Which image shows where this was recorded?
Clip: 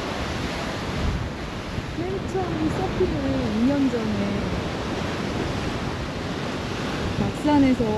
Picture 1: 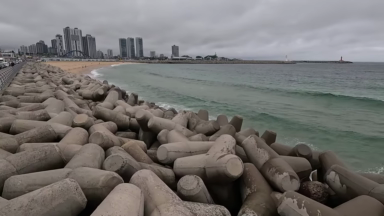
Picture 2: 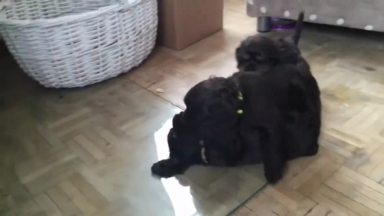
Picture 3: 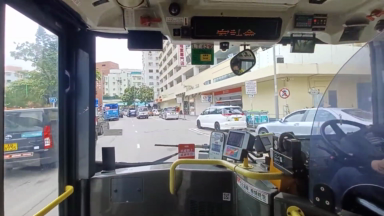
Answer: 1